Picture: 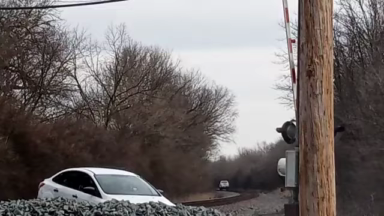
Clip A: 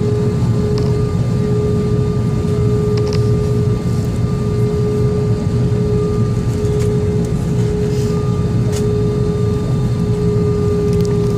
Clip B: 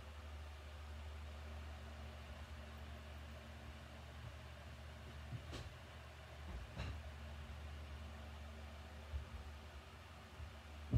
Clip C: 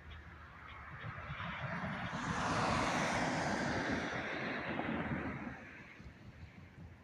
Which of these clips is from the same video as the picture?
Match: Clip C